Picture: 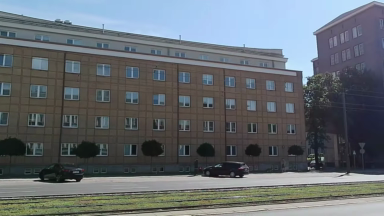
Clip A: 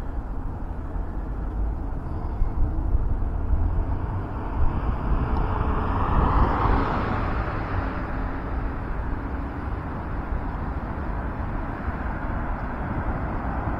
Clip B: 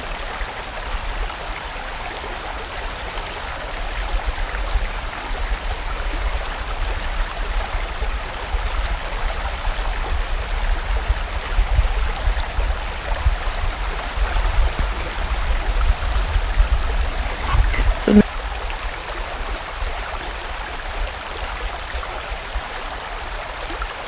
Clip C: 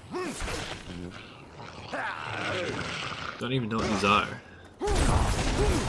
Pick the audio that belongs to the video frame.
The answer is A